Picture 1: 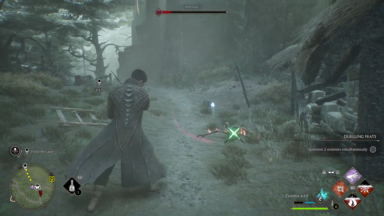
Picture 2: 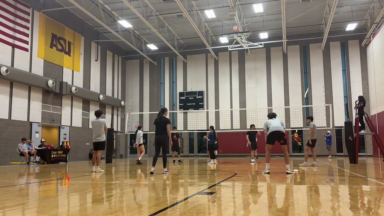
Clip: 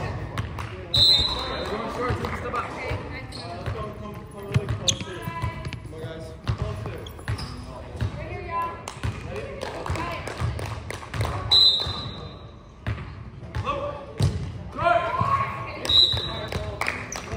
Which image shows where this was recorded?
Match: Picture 2